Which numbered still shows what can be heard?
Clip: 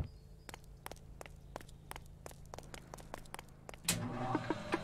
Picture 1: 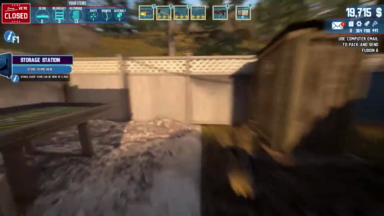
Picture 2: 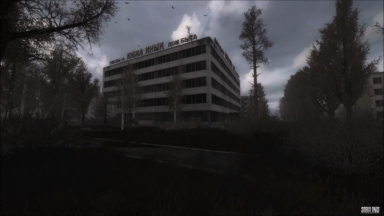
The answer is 1